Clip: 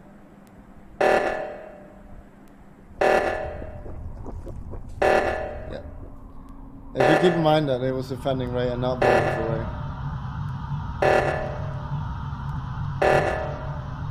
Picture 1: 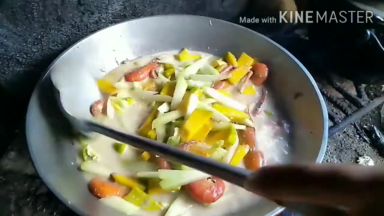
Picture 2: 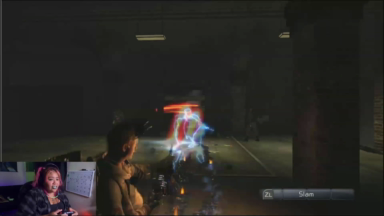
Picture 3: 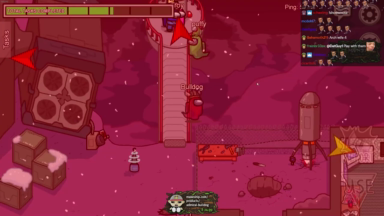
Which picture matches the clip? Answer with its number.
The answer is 3